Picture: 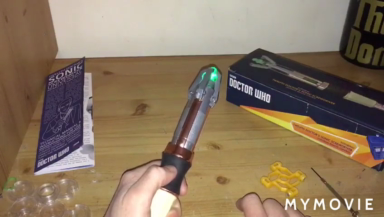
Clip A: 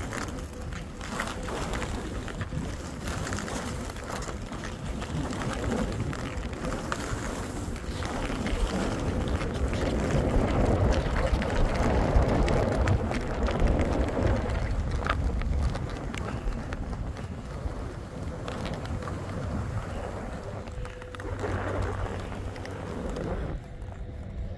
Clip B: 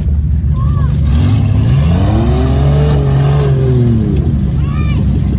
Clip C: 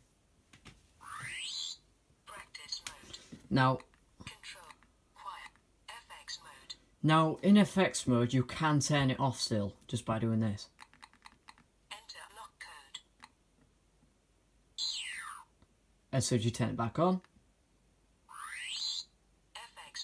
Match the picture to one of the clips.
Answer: C